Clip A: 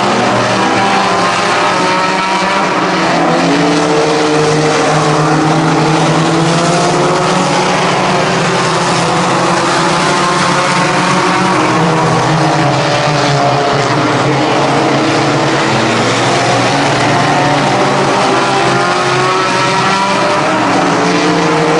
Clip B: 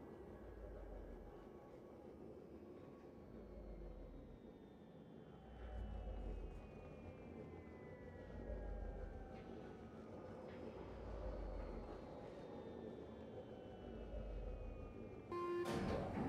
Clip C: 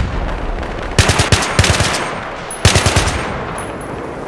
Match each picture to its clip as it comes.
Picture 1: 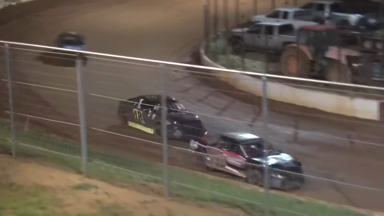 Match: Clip A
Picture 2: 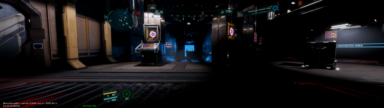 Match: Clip B